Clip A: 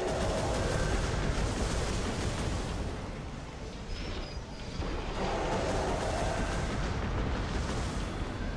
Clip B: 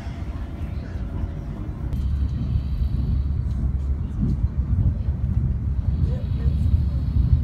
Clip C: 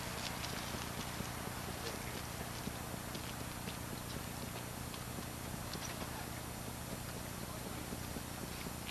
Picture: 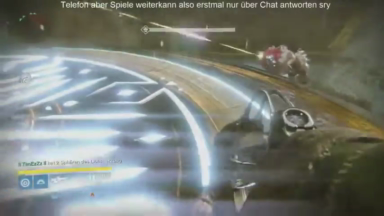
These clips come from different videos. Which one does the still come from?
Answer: A